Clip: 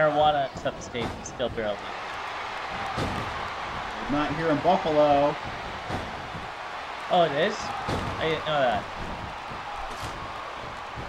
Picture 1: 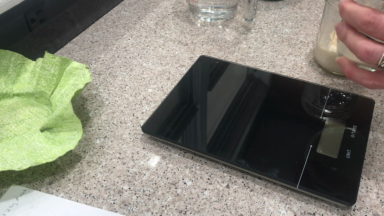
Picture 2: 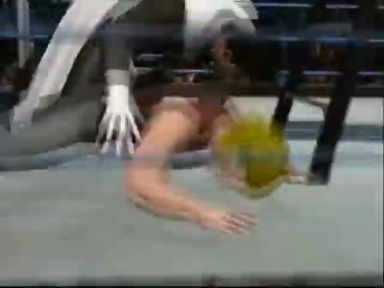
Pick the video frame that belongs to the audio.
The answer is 2